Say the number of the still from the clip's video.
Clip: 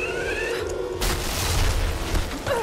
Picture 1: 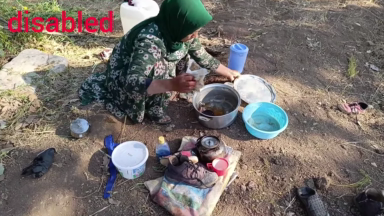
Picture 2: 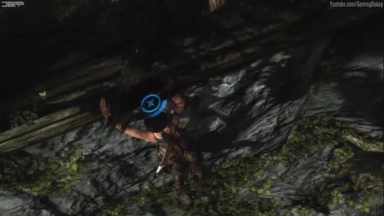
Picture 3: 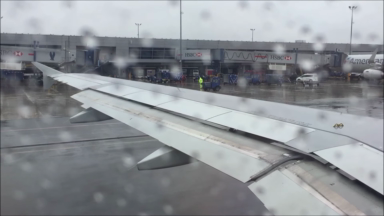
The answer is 2